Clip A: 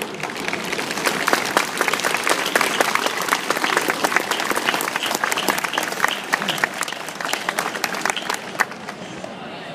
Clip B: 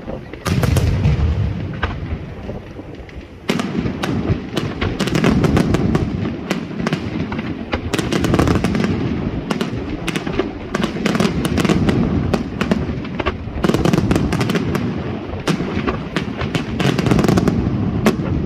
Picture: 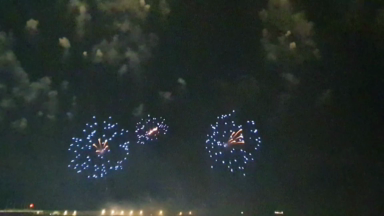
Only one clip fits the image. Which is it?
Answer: B